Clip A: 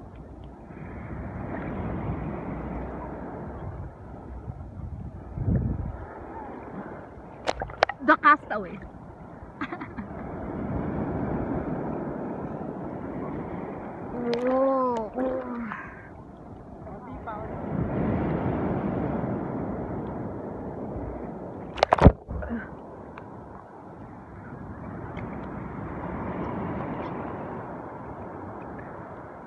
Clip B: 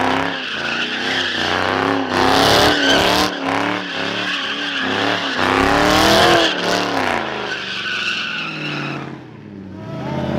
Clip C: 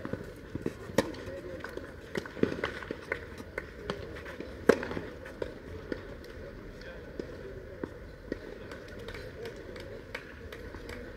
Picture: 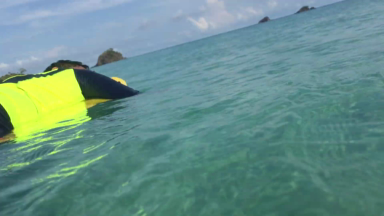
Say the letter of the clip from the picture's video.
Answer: A